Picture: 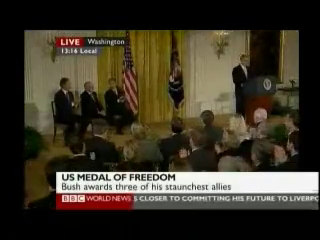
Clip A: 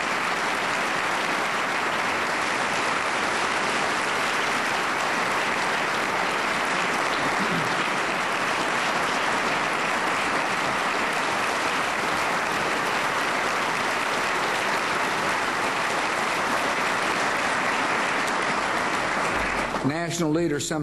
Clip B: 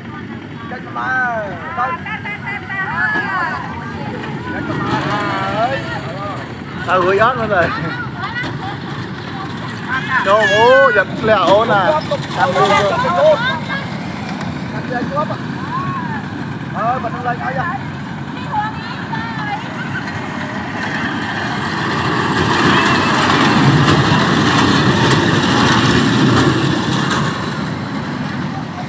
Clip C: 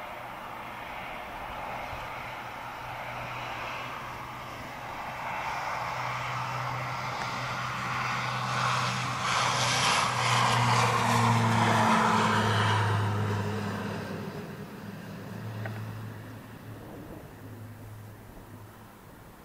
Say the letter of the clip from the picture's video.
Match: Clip A